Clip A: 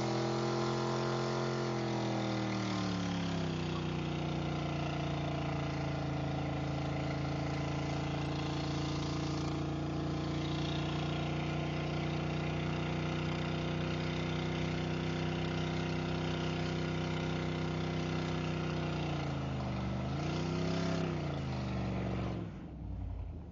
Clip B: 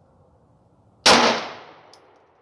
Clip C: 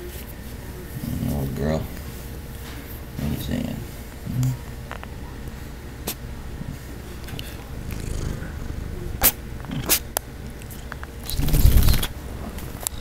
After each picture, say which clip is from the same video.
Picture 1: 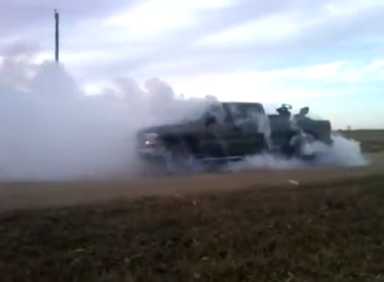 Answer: A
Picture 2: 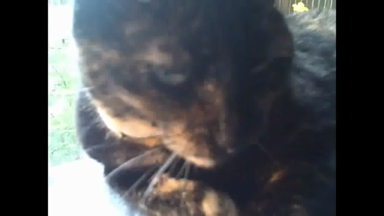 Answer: C